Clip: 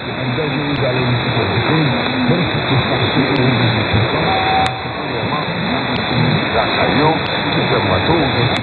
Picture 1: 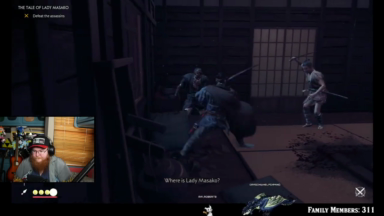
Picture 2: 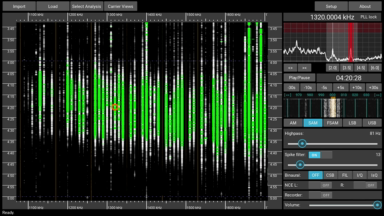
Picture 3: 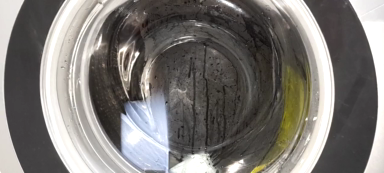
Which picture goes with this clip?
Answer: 2